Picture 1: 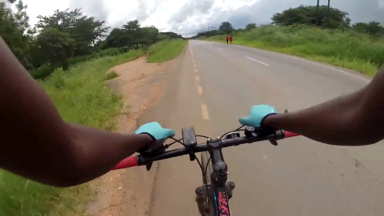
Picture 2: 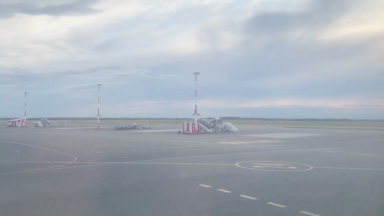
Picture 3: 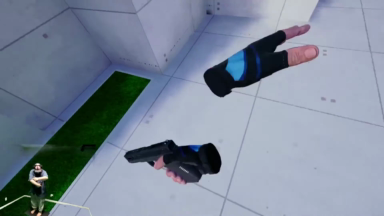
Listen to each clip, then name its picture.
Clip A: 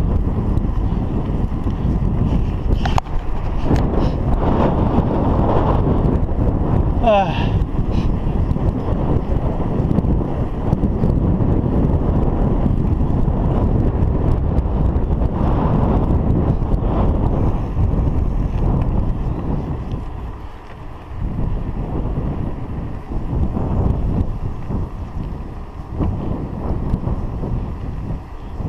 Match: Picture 1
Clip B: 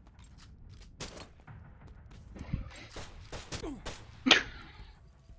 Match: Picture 3